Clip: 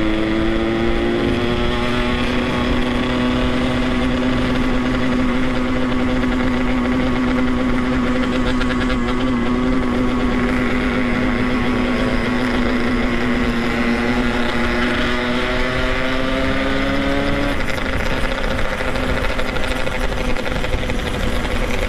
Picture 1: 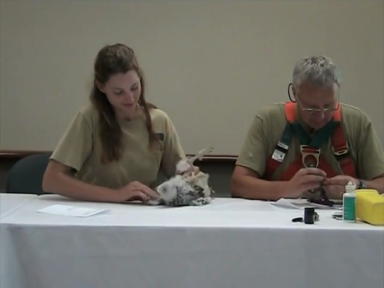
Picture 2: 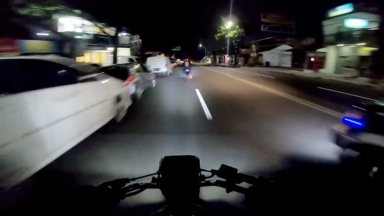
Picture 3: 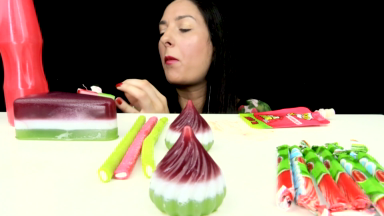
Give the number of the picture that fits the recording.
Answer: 2